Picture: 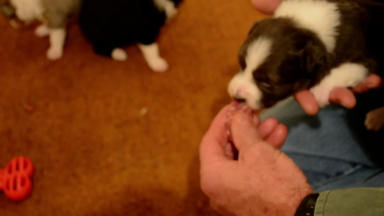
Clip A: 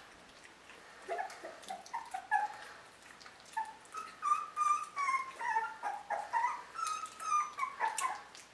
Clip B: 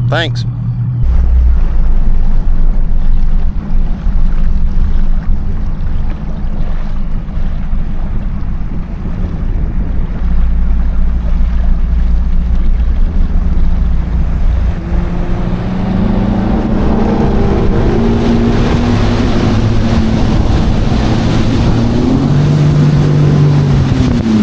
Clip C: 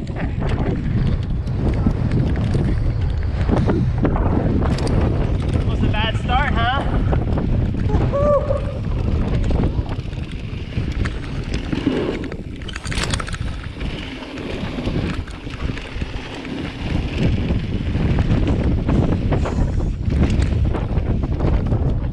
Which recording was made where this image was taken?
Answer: A